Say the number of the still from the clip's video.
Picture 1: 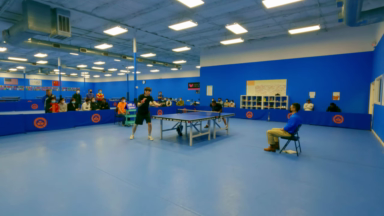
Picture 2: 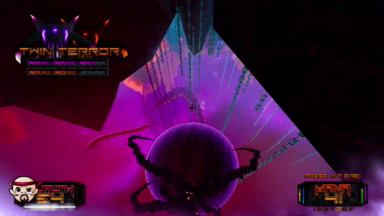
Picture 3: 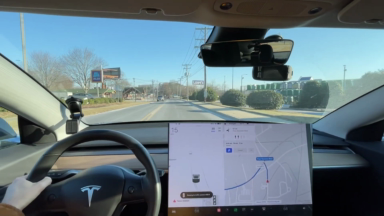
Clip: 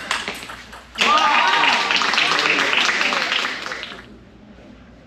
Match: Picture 1